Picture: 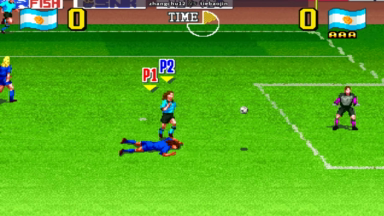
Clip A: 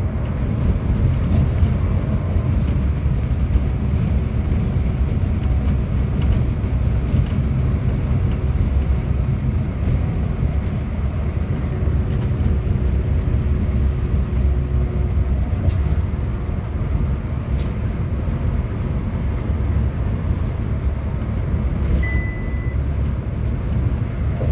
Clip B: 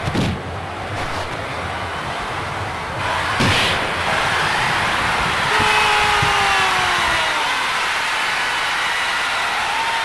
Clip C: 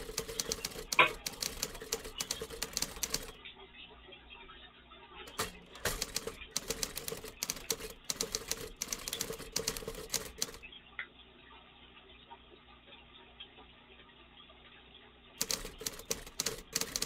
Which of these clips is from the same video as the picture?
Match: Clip B